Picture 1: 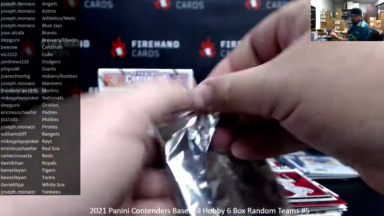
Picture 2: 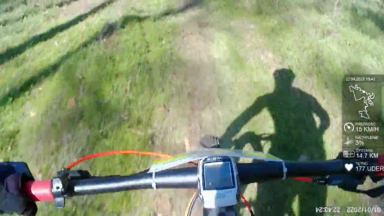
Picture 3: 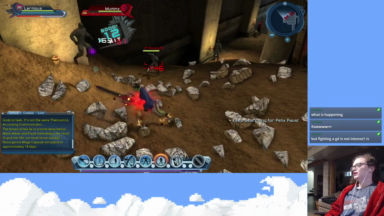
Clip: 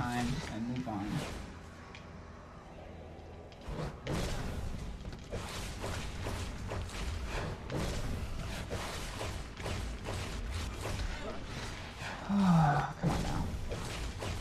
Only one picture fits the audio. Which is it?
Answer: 3